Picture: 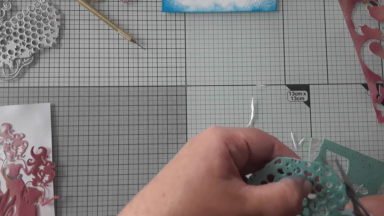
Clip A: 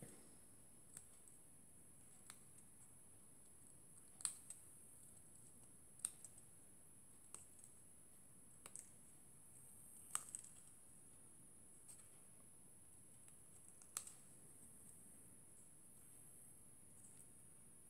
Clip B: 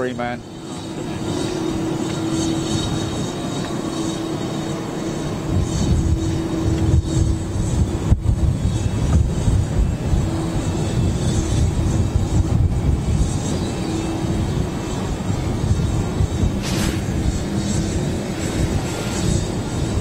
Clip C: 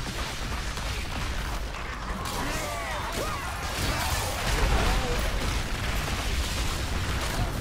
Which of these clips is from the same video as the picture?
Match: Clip A